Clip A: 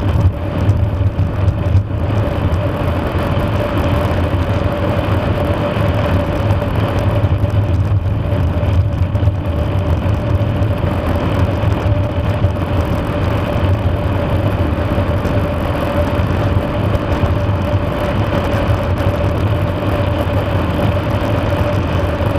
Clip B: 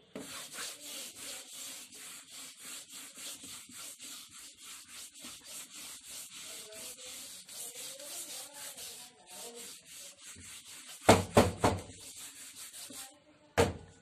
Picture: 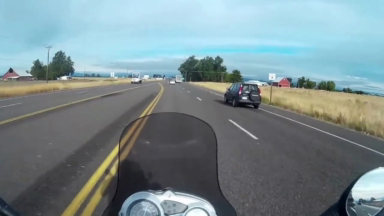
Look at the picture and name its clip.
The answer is A